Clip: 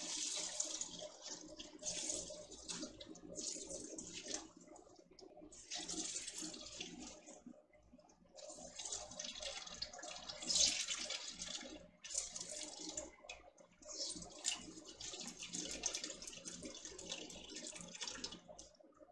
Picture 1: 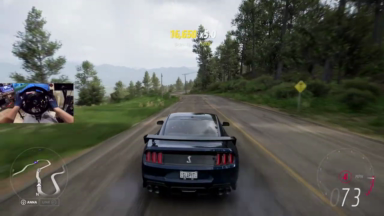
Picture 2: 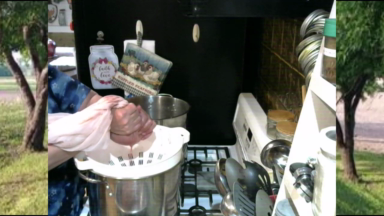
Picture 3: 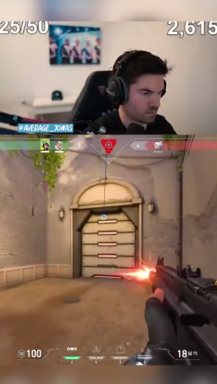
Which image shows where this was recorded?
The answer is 2